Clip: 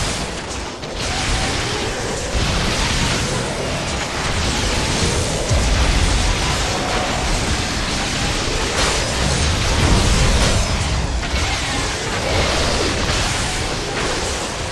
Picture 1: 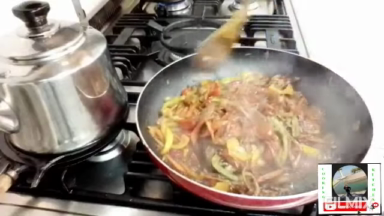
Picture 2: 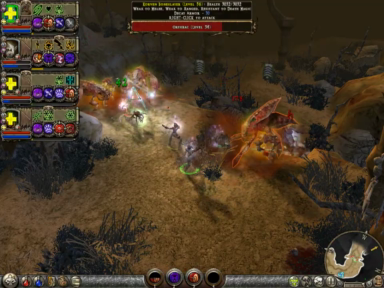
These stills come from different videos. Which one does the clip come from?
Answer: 2